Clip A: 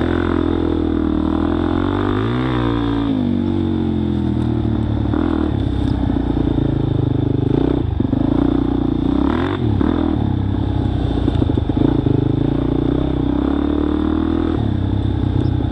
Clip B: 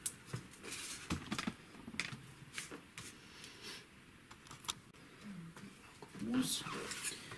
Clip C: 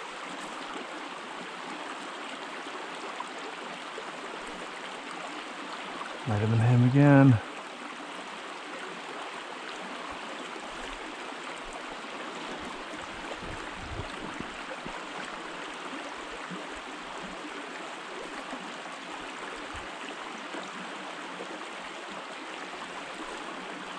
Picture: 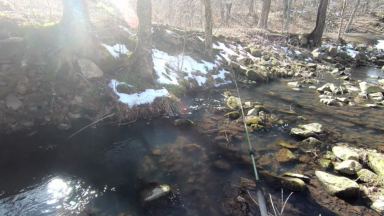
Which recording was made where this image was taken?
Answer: C